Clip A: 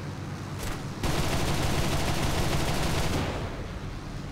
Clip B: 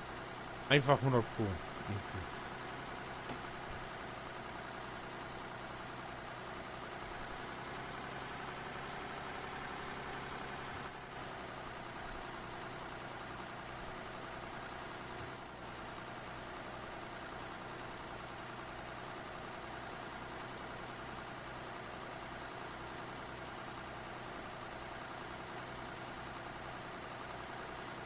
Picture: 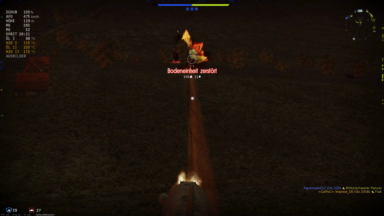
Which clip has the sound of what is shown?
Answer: A